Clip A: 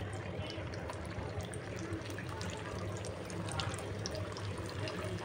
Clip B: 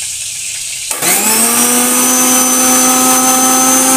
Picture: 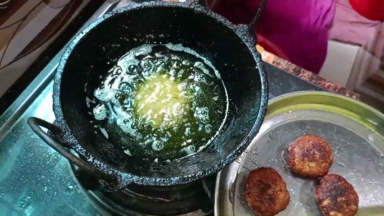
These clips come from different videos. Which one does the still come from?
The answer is A